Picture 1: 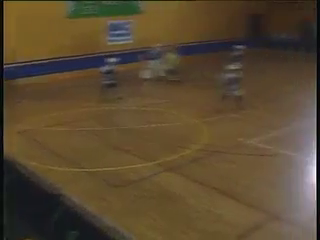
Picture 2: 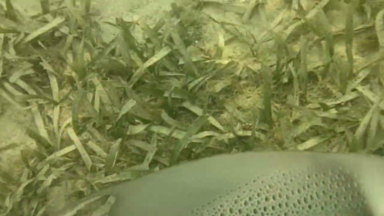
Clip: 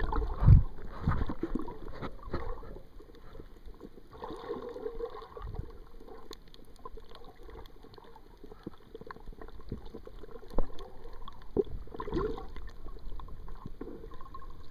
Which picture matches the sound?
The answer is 2